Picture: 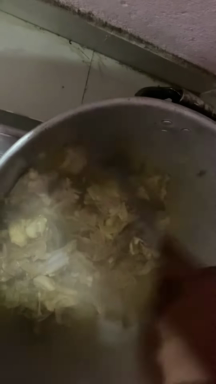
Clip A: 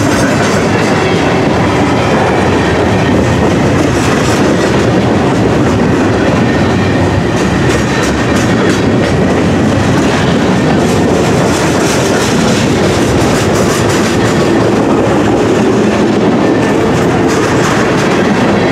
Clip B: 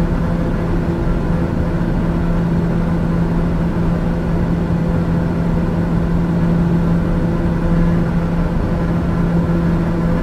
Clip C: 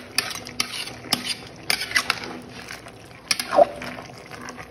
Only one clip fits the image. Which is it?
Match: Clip C